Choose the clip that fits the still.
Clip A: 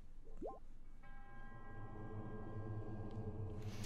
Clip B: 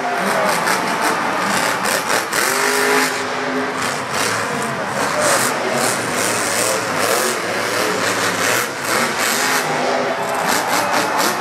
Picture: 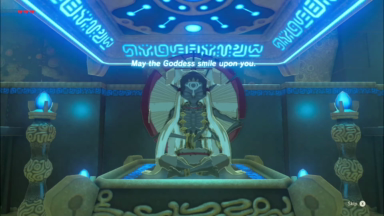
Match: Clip A